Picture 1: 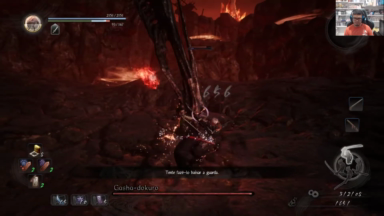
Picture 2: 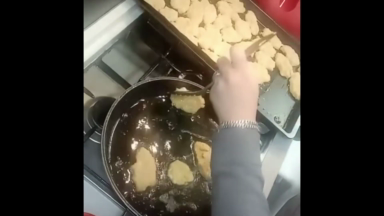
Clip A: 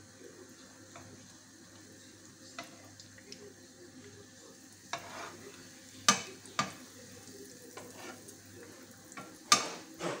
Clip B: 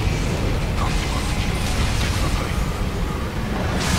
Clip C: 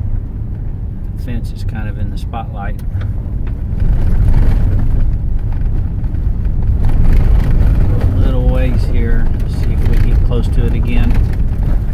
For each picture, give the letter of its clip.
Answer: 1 B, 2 A